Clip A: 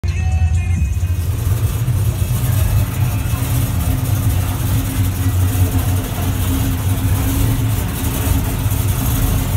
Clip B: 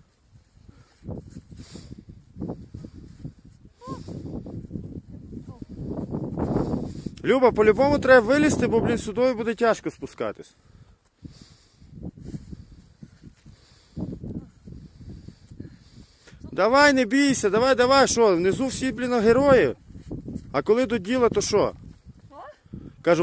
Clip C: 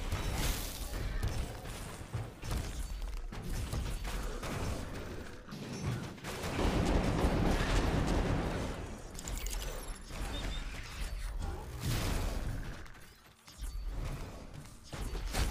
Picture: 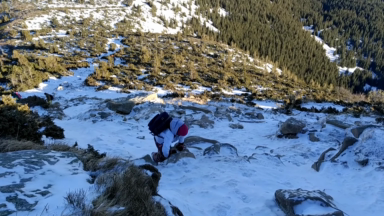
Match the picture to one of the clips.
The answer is B